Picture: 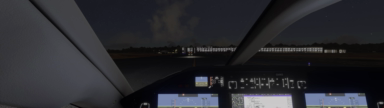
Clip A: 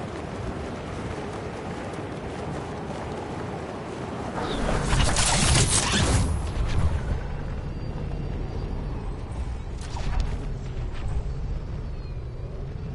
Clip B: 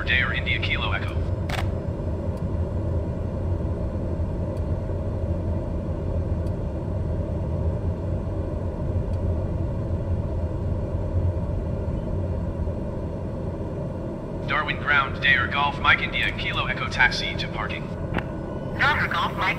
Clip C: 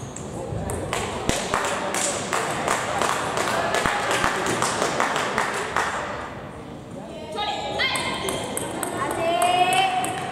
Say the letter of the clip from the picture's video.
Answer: B